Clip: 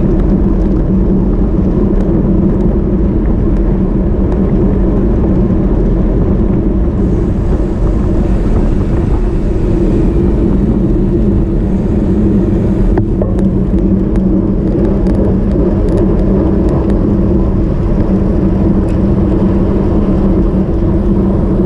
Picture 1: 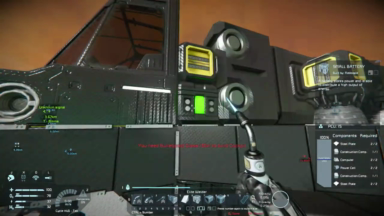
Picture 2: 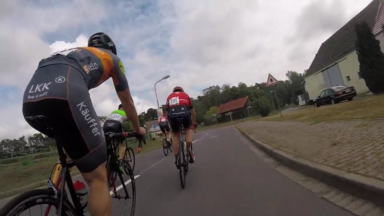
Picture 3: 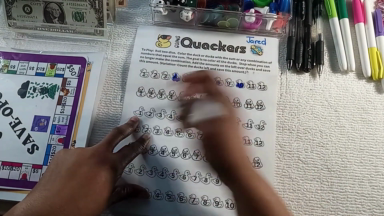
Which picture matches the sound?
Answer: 2